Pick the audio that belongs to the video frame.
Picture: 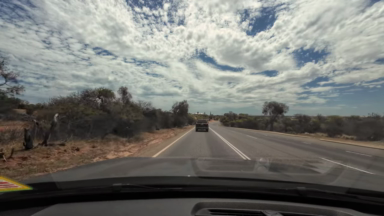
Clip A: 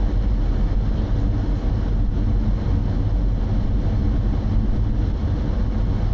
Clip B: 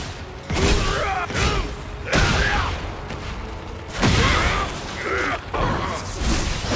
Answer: A